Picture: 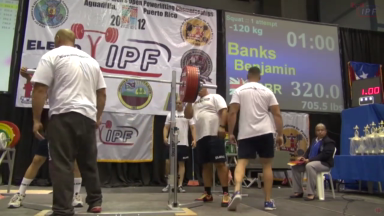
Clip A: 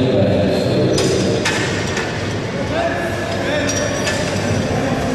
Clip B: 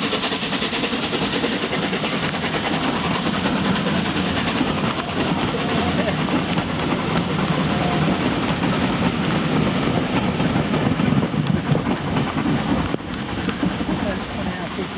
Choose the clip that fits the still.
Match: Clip A